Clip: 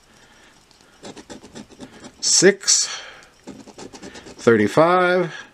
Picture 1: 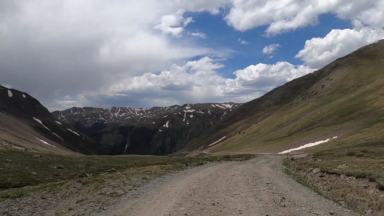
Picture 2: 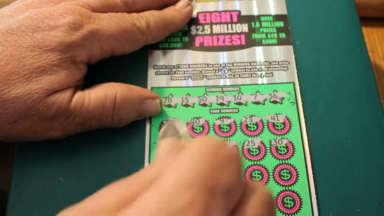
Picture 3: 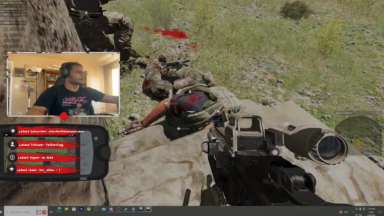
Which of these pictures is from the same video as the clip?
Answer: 2